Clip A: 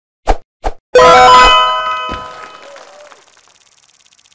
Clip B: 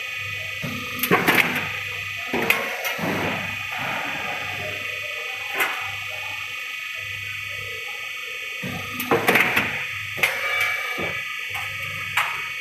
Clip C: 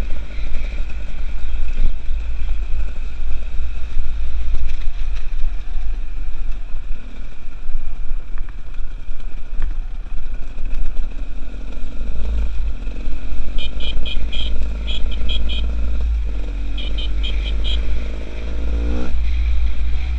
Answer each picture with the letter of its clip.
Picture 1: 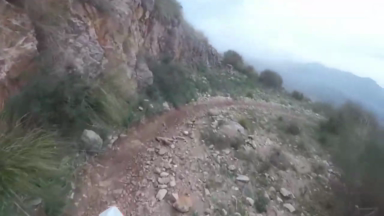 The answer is C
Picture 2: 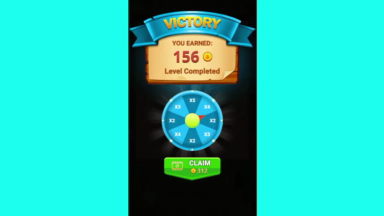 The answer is A